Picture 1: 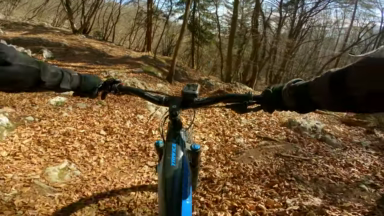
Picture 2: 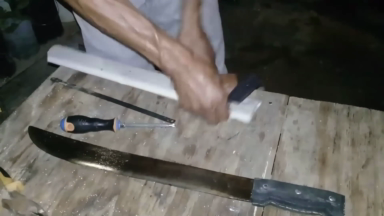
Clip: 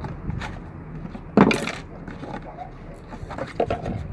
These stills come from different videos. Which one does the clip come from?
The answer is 2